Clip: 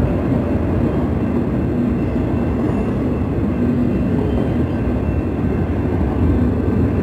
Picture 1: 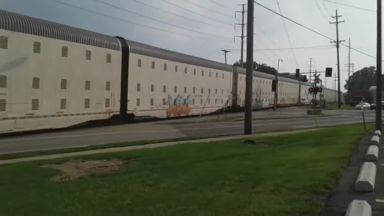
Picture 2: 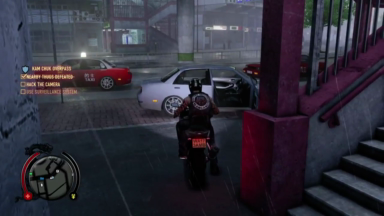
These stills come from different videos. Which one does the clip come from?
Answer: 1